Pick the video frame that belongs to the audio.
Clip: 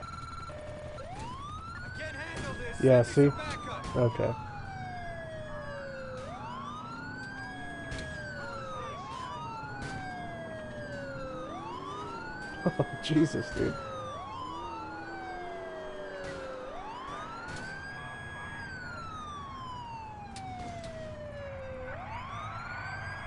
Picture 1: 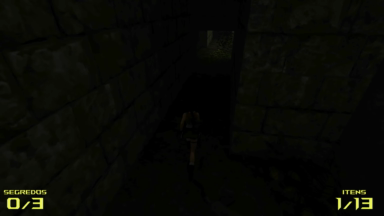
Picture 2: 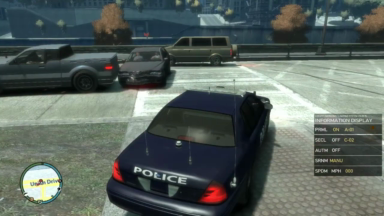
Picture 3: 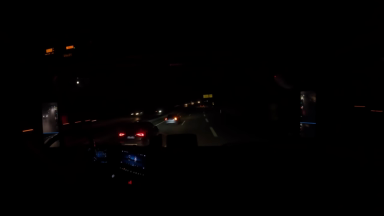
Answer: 2